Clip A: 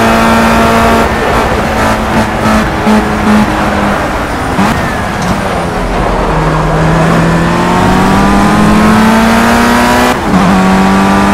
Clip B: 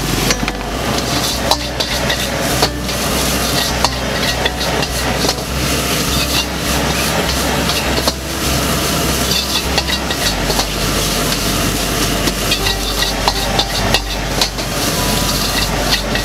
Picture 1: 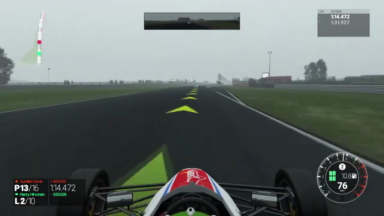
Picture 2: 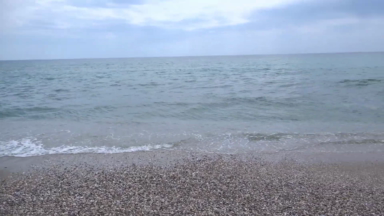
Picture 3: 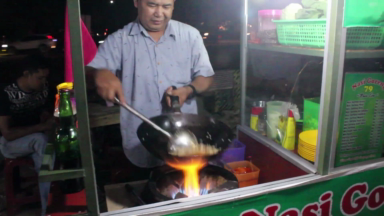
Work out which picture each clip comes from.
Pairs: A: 1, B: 3